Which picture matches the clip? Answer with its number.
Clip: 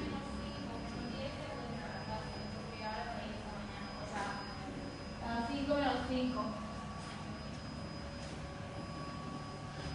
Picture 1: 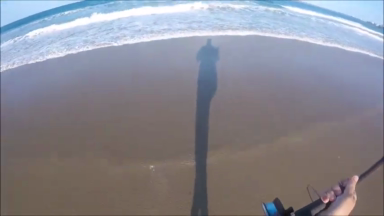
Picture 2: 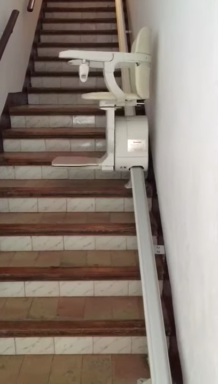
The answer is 2